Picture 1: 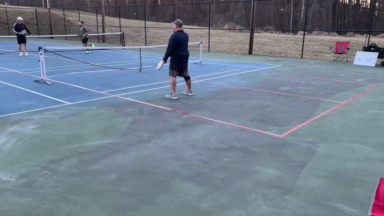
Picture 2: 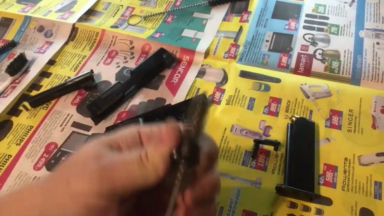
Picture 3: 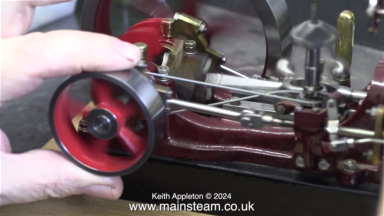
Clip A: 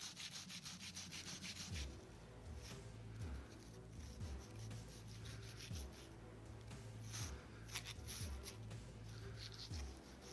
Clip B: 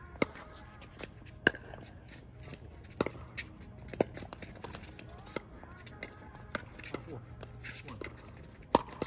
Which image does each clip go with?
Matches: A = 2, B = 1